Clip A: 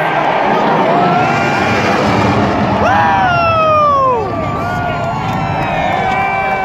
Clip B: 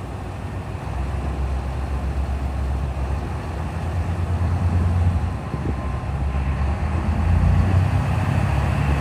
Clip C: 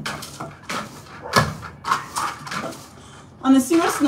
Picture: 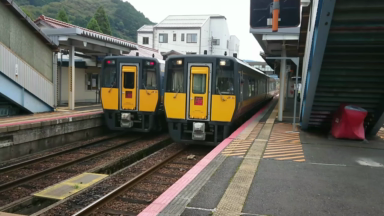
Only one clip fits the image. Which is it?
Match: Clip B